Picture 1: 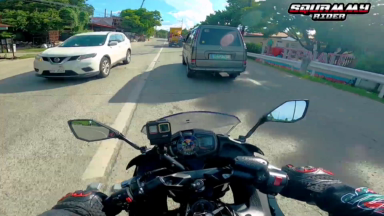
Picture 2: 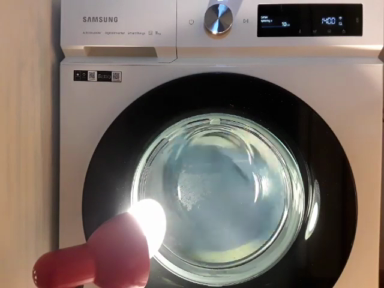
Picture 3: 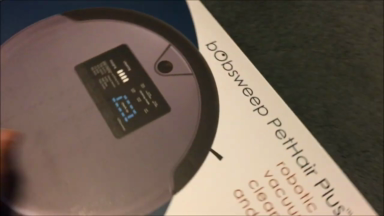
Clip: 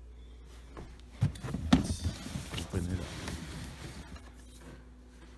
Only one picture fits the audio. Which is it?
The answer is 3